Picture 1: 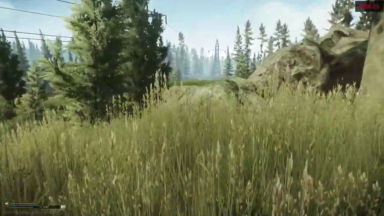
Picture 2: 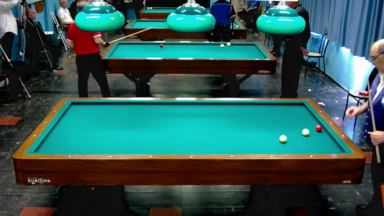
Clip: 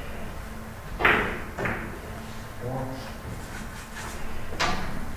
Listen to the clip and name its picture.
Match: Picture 2